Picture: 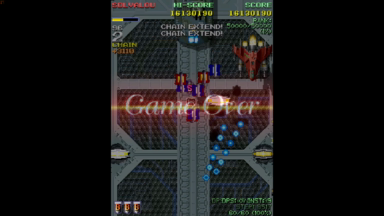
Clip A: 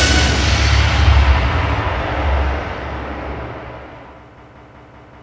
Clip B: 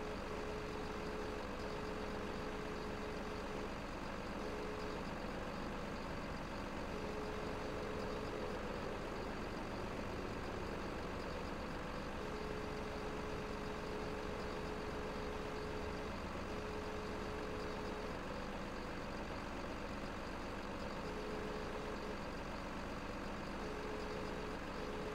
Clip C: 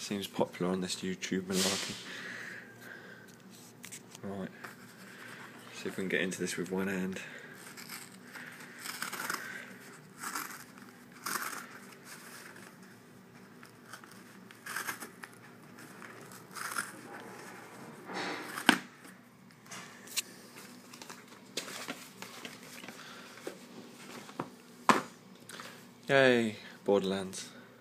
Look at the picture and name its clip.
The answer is A